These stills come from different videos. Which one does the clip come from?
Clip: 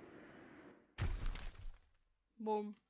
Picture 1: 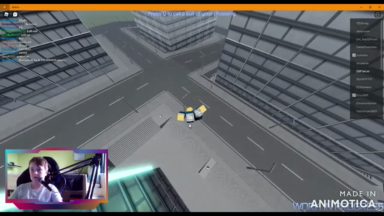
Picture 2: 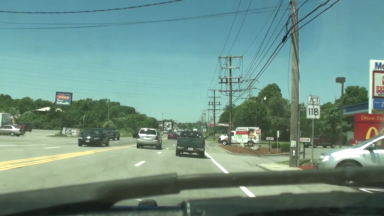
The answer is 1